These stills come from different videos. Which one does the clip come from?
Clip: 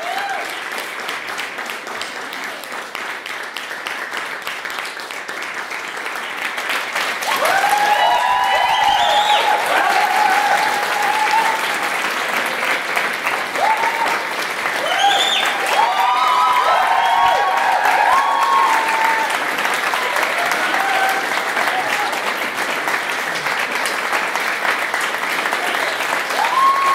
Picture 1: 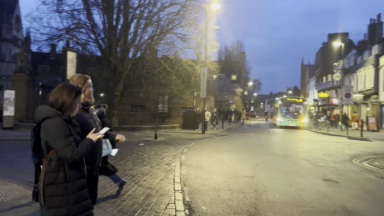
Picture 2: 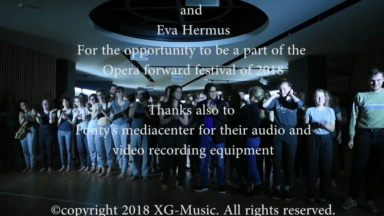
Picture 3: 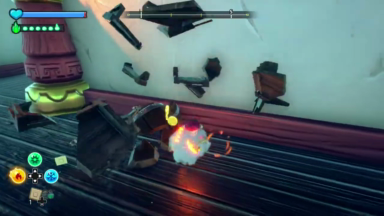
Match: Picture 2